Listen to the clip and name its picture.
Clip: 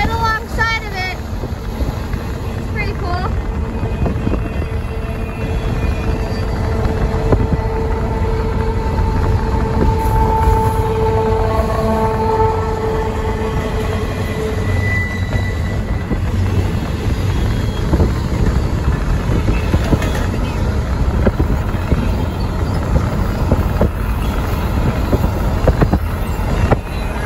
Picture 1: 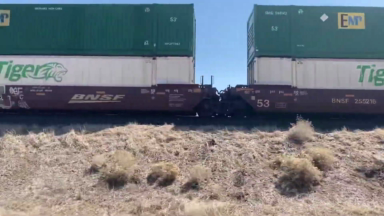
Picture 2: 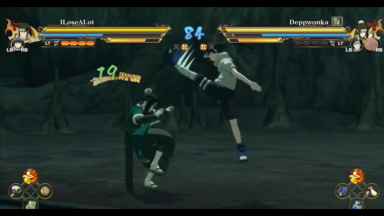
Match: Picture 1